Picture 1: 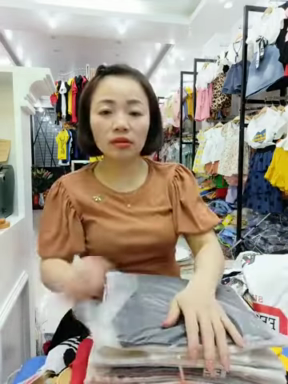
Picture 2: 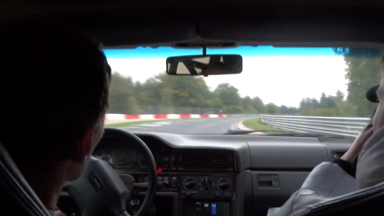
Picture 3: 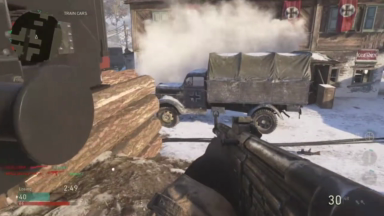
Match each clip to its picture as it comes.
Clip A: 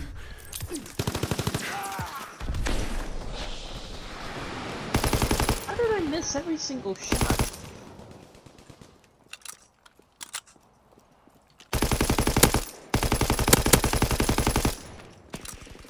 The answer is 3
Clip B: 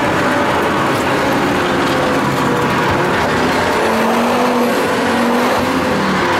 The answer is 2